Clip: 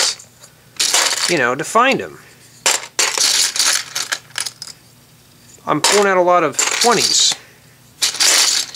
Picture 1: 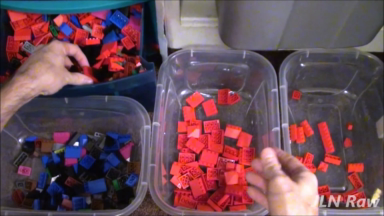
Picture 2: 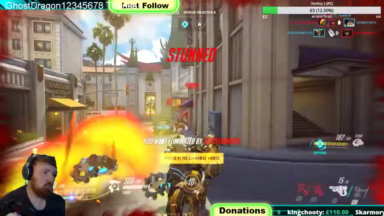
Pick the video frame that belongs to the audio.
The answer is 1